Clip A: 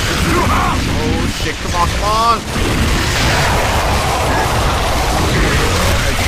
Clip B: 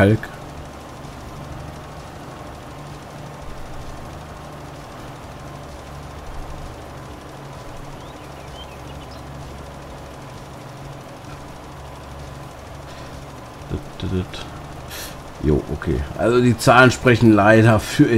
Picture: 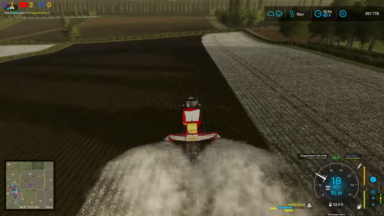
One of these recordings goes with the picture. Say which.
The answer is B